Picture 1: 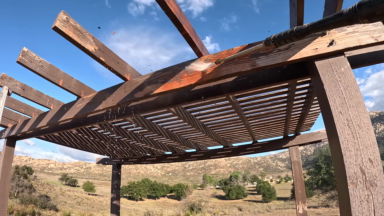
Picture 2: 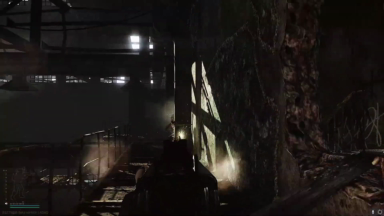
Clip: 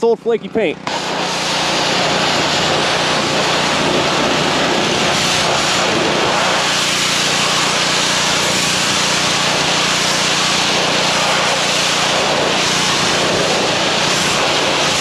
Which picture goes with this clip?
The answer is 1